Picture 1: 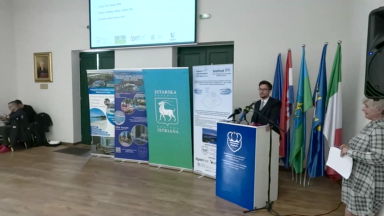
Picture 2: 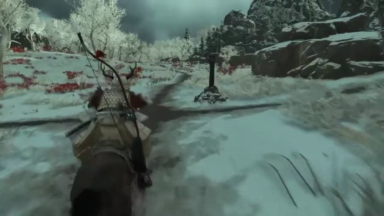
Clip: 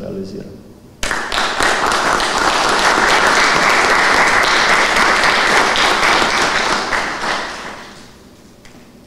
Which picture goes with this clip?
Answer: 1